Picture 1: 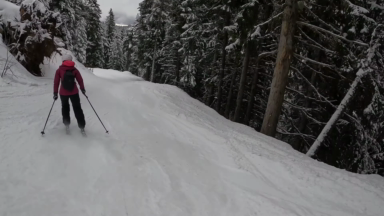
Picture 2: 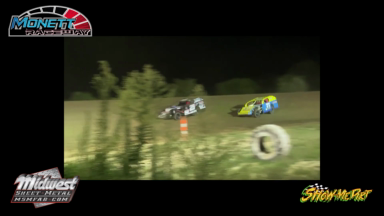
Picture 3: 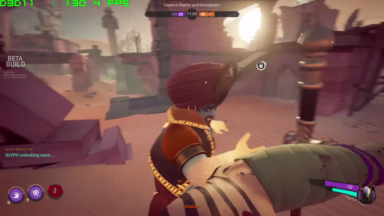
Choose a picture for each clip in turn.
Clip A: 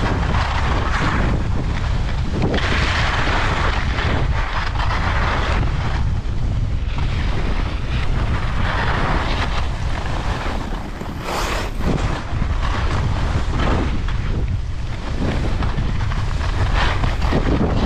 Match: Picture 1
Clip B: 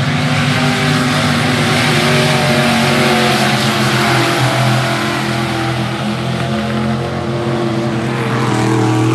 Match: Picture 2